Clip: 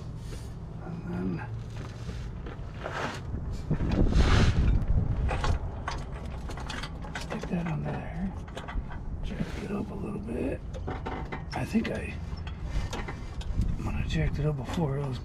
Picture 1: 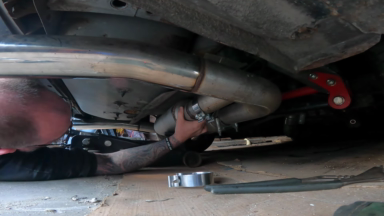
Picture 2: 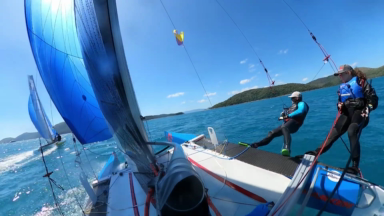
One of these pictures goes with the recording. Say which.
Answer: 1